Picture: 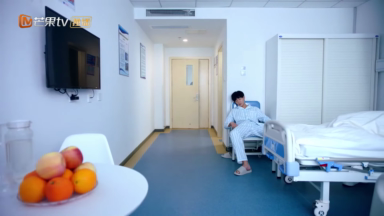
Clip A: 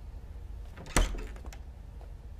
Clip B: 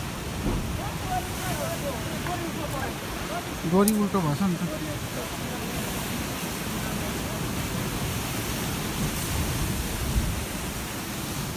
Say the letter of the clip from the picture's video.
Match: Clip A